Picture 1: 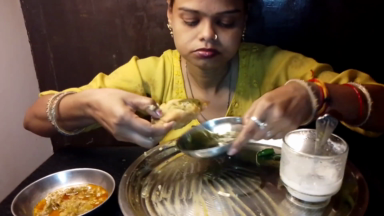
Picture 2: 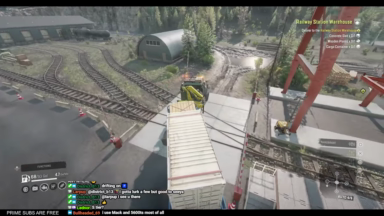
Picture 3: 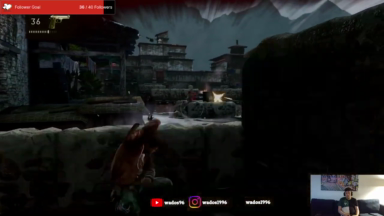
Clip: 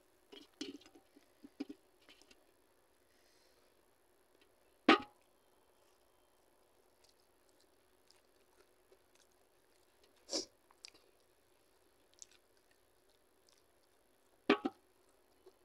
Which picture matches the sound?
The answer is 1